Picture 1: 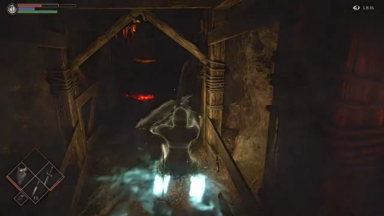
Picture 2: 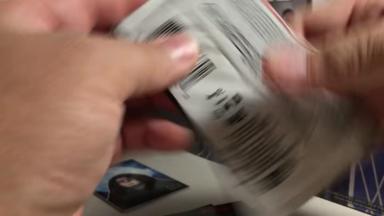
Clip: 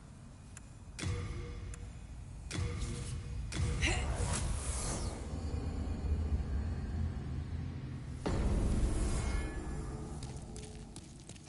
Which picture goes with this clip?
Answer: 1